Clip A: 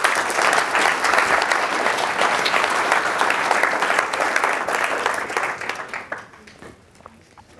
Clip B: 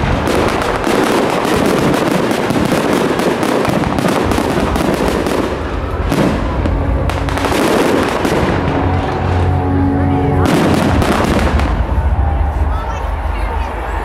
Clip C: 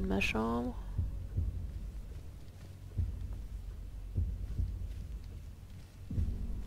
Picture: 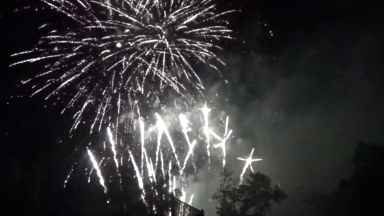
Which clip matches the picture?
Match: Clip B